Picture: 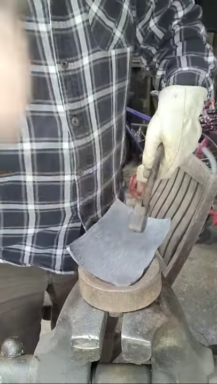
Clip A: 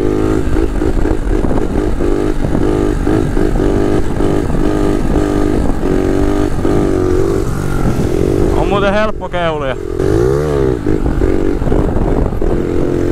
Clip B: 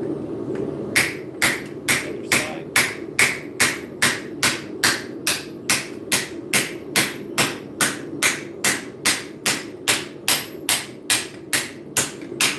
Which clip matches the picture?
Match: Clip B